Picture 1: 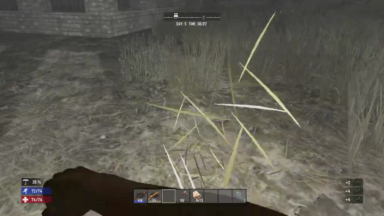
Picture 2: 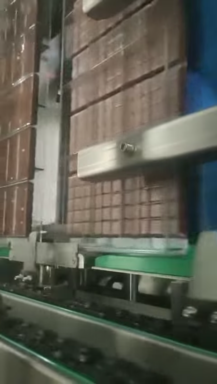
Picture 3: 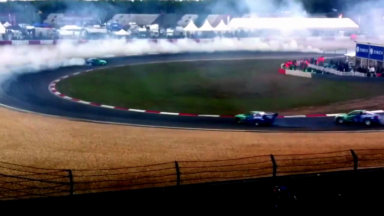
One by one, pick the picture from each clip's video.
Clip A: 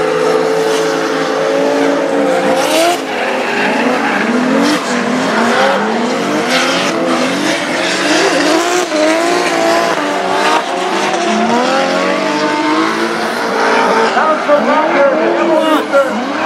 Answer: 3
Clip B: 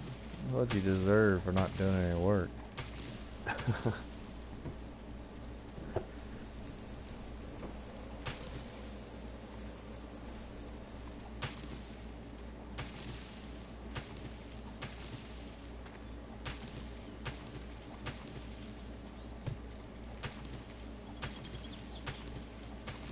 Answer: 1